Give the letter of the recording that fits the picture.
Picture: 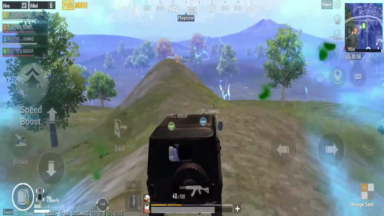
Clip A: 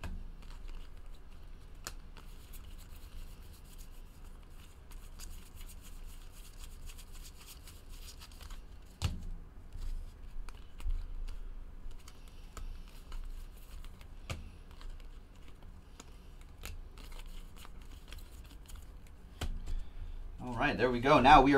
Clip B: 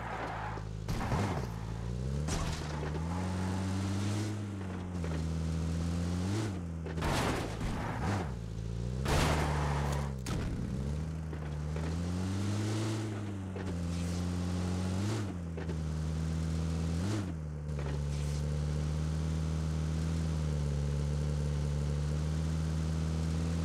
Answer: B